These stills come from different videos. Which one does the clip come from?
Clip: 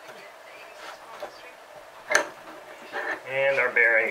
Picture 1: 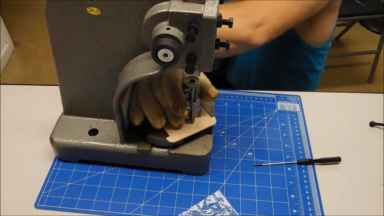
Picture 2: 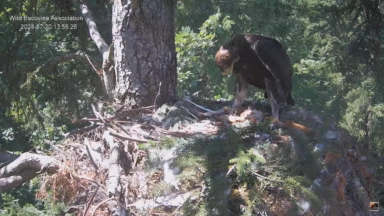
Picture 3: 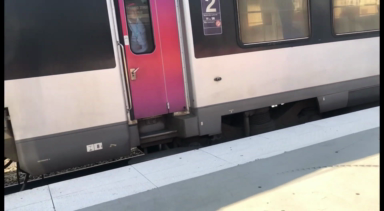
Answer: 1